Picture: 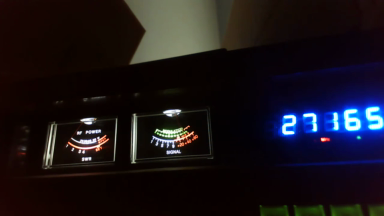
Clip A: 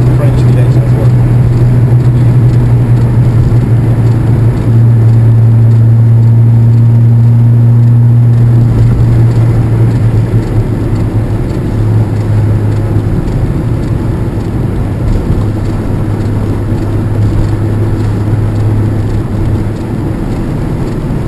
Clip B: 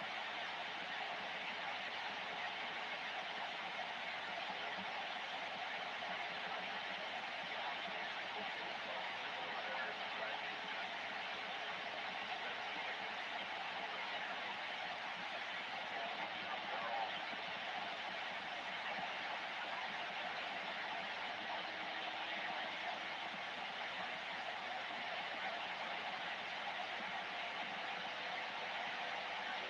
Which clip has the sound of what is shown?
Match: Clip B